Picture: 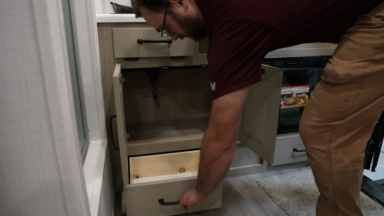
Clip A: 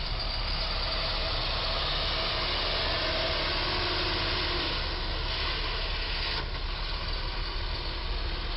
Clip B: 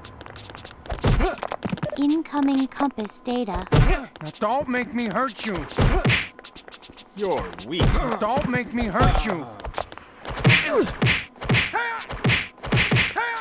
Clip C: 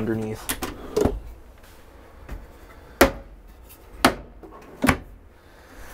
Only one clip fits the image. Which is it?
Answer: C